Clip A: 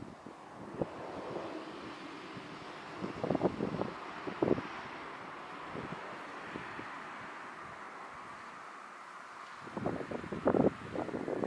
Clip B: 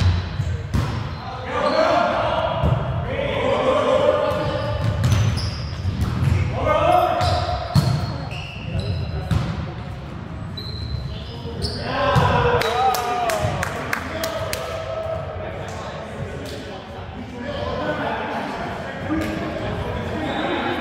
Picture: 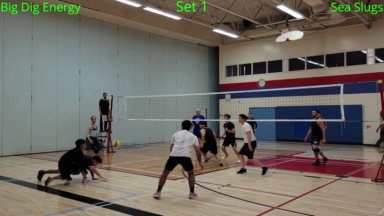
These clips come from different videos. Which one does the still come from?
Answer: B